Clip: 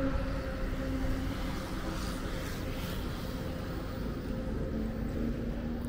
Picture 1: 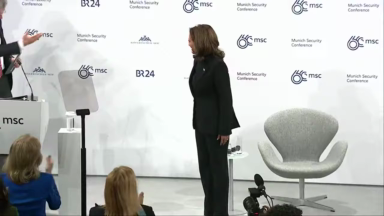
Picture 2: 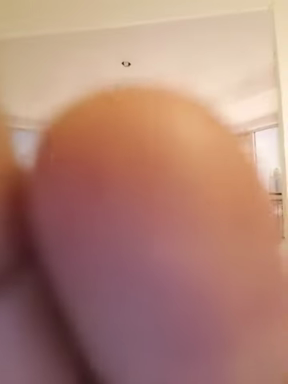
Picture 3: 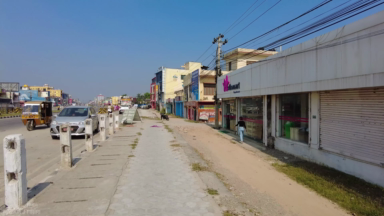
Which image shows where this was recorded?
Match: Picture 3